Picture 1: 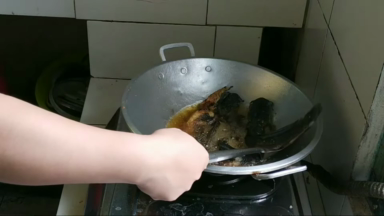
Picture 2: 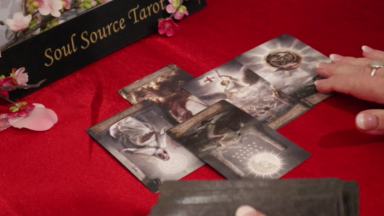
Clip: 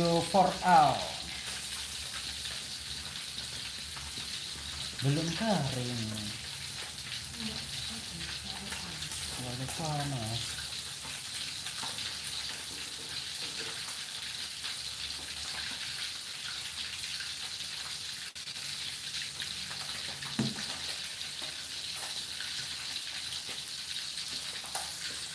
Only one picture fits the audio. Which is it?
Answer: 1